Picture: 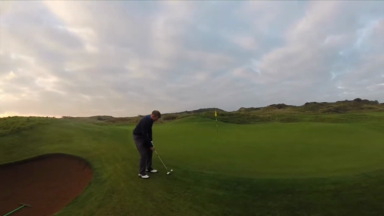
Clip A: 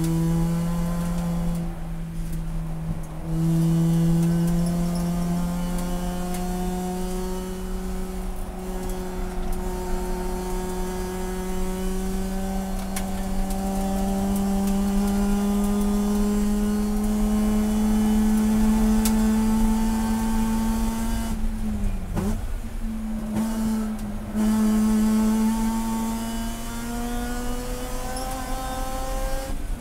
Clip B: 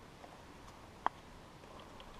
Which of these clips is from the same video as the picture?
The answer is B